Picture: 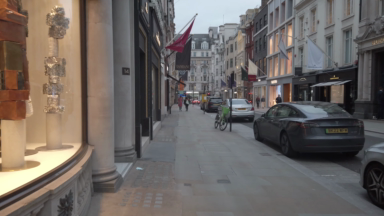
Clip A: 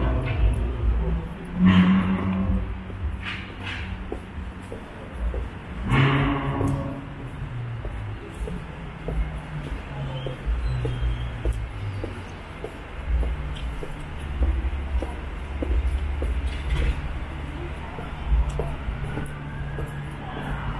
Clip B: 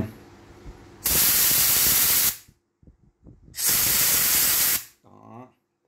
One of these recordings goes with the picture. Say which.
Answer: A